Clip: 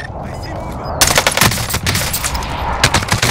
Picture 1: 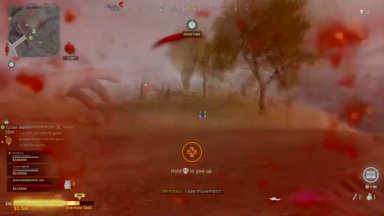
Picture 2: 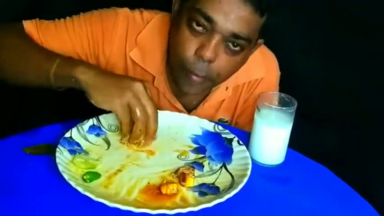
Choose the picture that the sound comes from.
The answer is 1